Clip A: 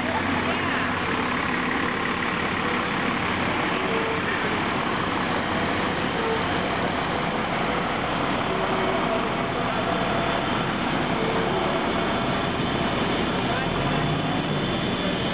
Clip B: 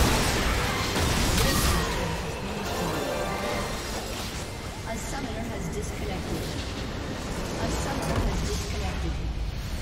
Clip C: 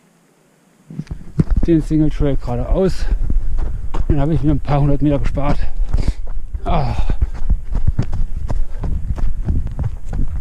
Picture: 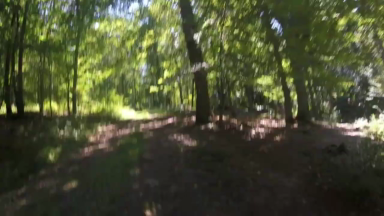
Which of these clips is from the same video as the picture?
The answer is C